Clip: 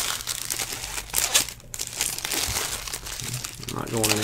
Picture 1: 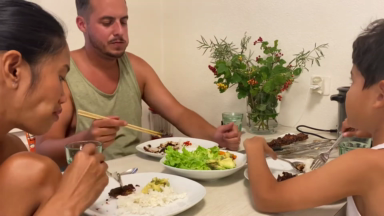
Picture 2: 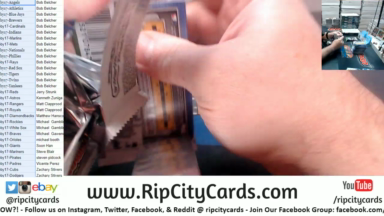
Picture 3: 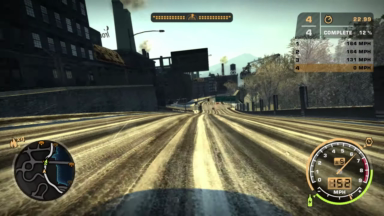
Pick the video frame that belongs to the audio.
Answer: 2